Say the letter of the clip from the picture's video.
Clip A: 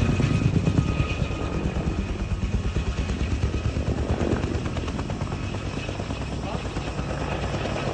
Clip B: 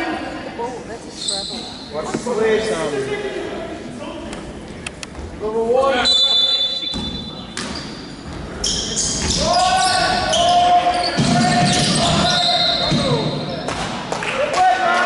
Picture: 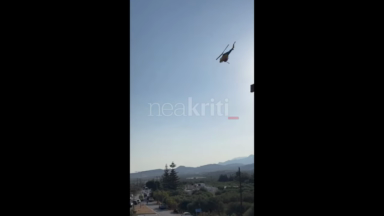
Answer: A